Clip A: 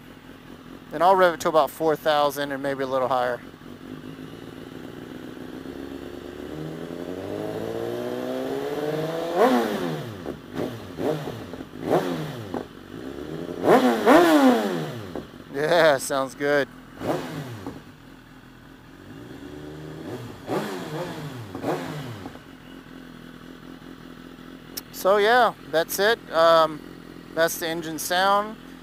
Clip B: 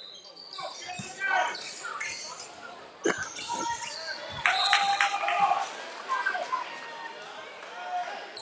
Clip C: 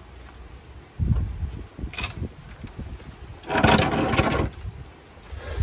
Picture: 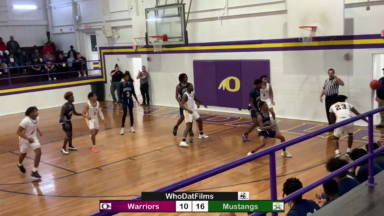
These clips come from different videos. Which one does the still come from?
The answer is B